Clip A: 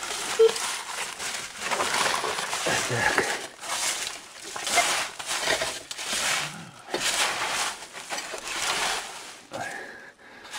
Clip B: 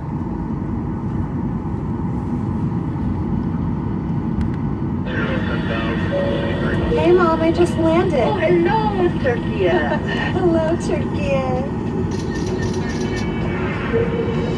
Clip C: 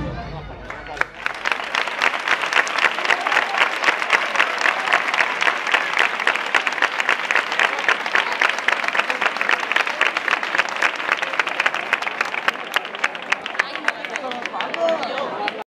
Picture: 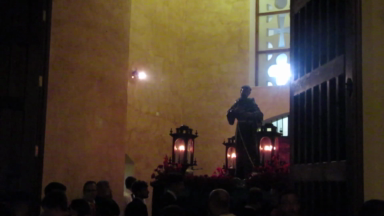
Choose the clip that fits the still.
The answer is C